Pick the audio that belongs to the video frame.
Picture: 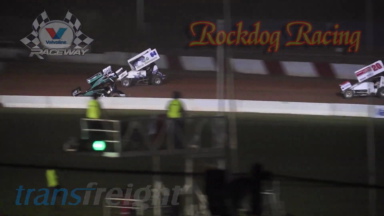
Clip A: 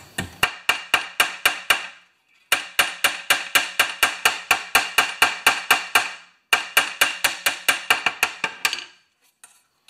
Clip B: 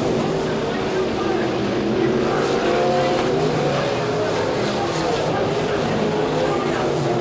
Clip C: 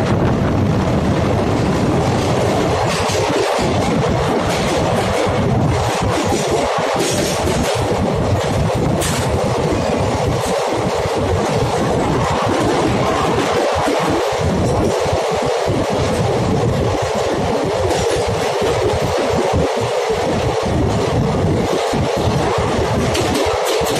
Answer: B